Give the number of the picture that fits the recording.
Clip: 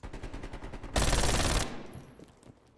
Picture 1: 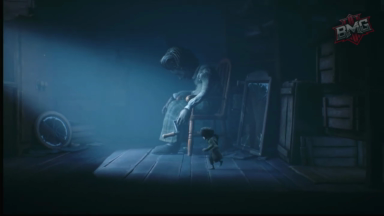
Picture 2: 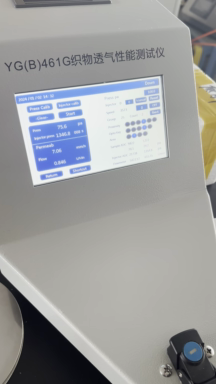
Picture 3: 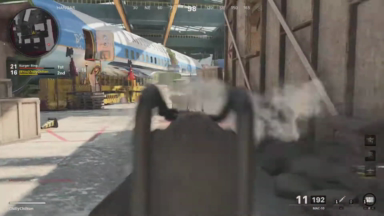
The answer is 3